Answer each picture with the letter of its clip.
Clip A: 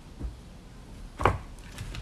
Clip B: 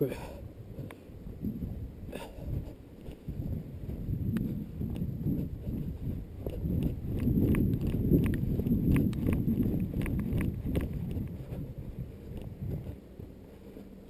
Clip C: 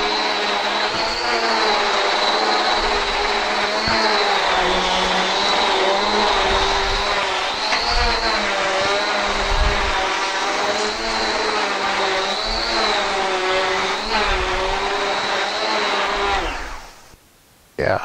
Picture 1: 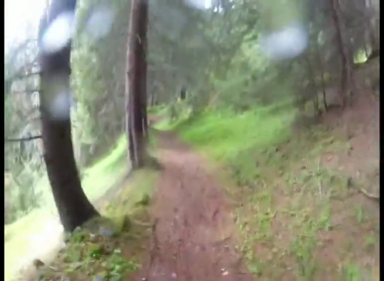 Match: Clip B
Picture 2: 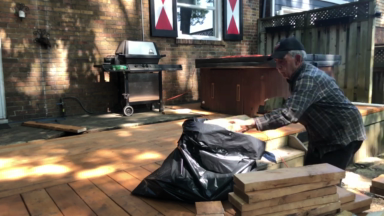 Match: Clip A